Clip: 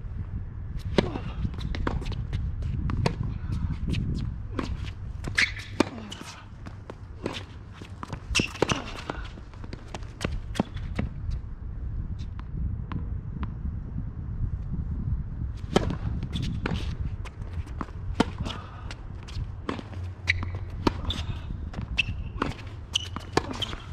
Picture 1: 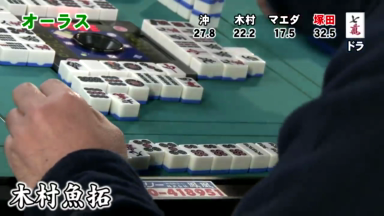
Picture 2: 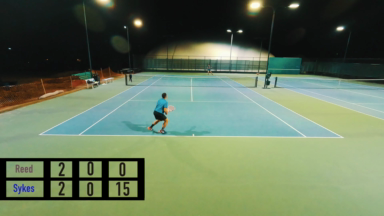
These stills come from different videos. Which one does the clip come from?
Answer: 2